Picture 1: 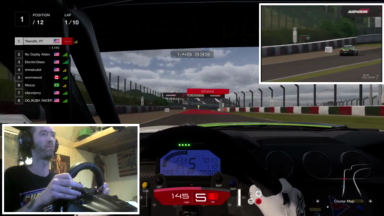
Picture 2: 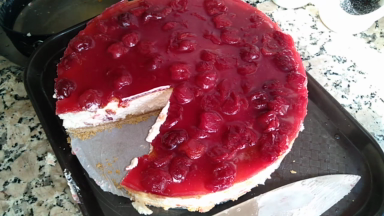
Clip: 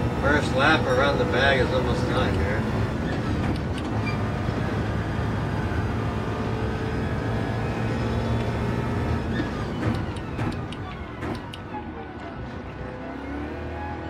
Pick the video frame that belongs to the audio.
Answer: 1